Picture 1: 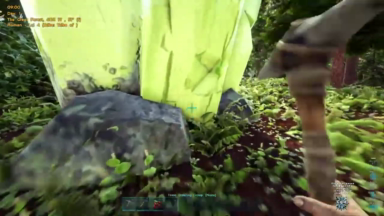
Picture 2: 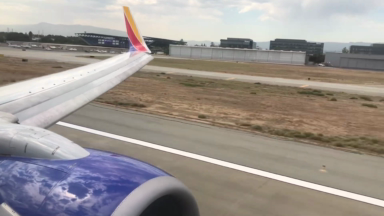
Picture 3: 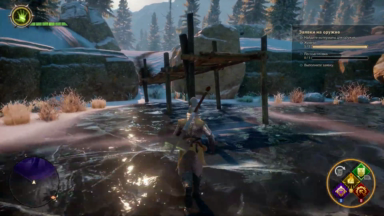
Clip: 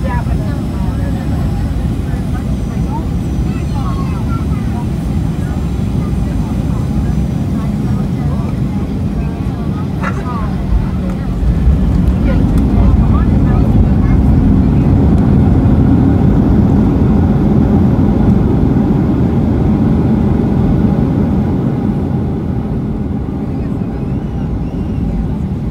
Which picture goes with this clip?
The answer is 2